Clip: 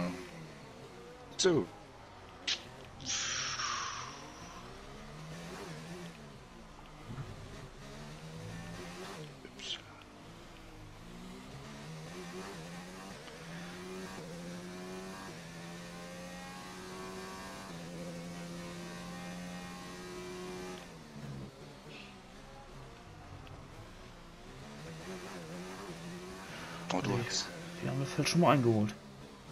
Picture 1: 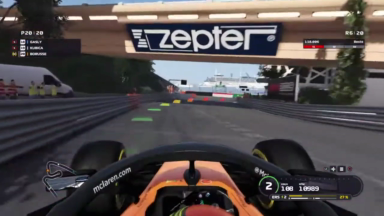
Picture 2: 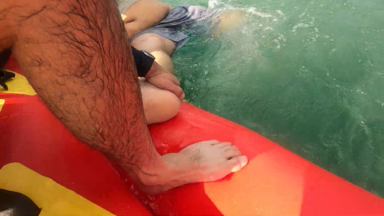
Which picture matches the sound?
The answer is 1